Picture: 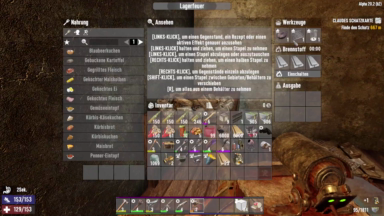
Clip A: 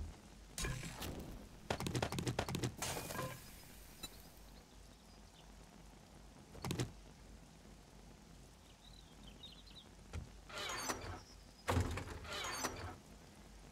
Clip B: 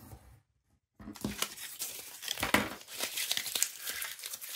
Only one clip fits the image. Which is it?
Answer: A